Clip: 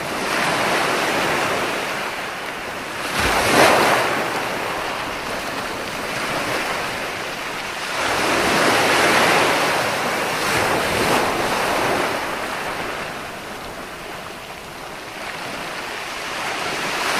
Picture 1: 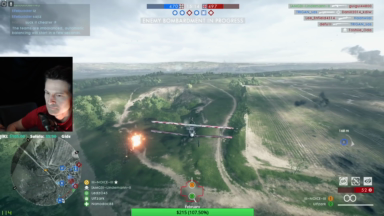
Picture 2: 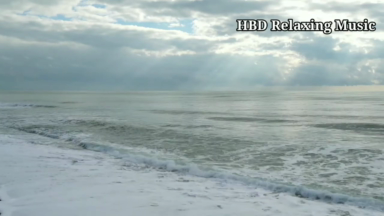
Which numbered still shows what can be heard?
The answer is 2